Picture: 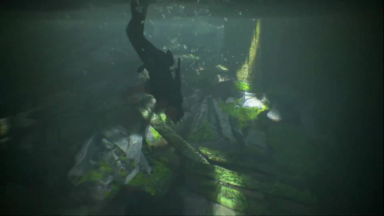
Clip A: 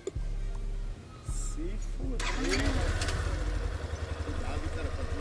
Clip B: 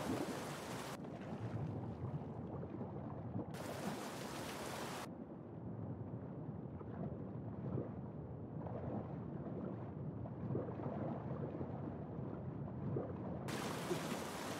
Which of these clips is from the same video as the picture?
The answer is B